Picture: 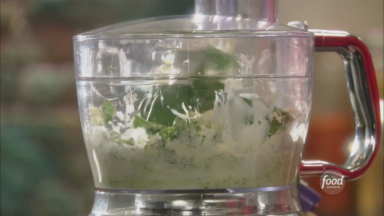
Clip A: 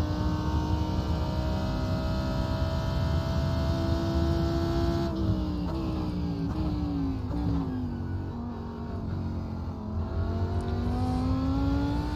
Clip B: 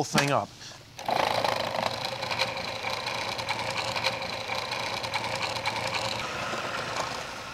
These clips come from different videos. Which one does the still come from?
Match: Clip B